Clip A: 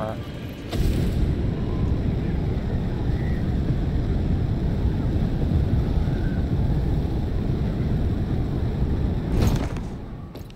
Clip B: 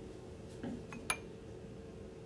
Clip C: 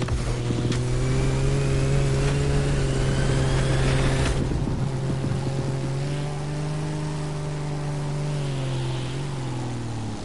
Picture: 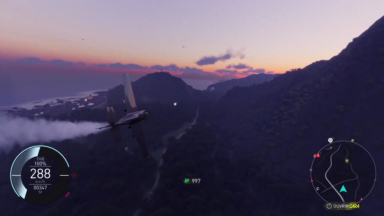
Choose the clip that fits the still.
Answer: C